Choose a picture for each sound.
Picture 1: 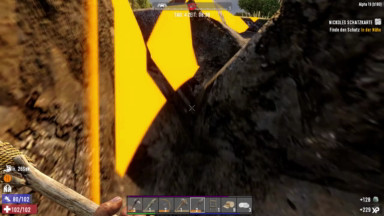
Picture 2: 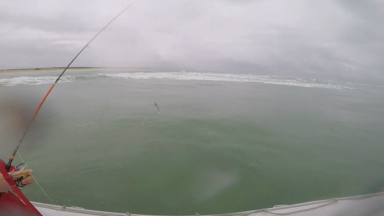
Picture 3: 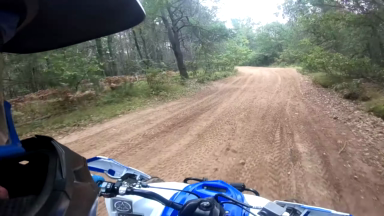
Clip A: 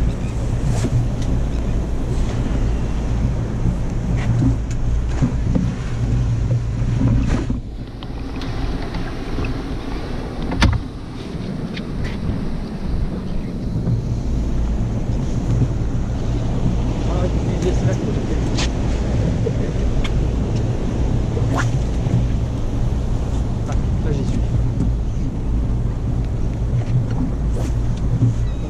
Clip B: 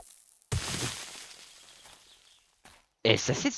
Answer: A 2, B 1